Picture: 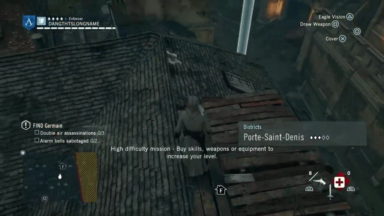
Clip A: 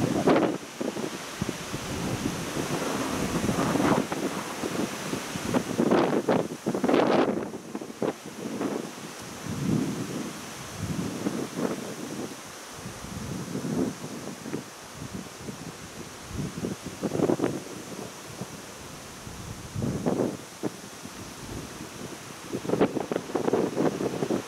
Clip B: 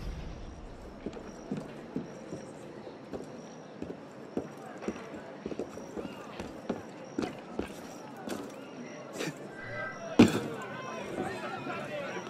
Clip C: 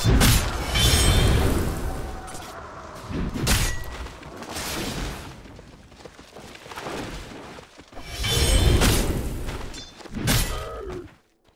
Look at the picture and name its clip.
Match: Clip B